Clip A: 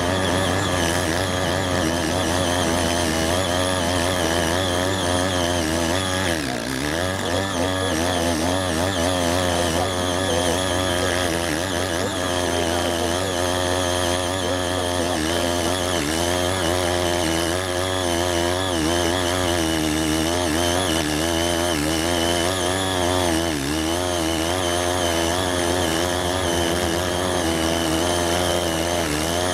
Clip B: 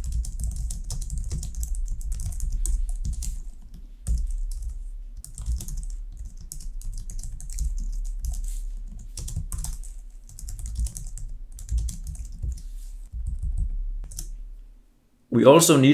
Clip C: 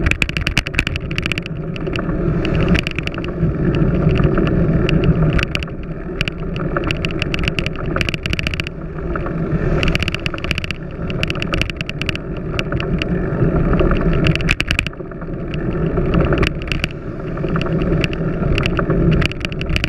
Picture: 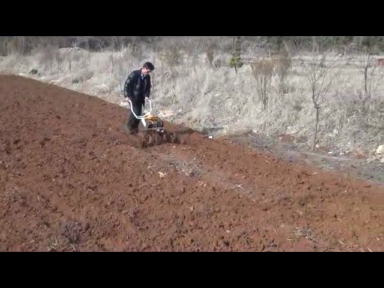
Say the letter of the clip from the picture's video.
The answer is A